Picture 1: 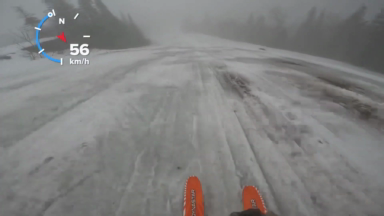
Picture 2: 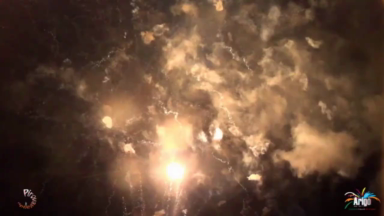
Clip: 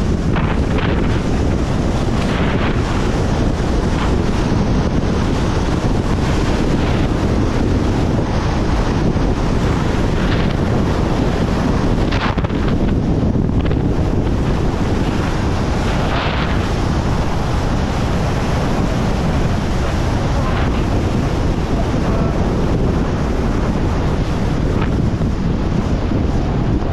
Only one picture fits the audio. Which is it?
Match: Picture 1